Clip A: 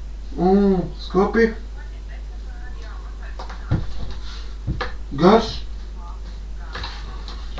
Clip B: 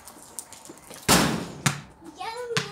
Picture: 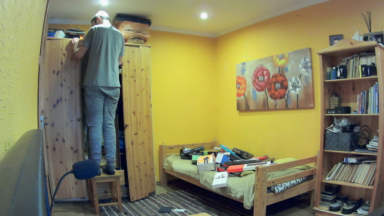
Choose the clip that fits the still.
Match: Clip A